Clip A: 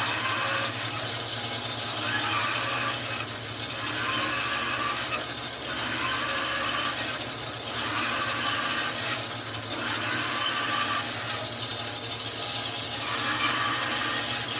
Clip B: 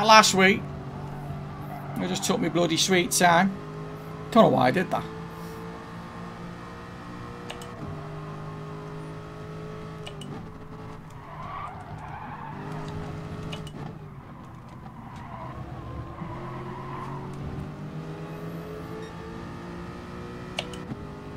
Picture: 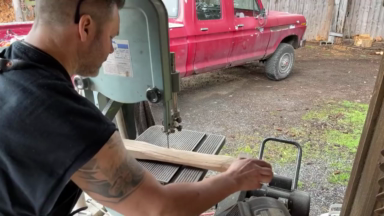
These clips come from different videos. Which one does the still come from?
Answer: A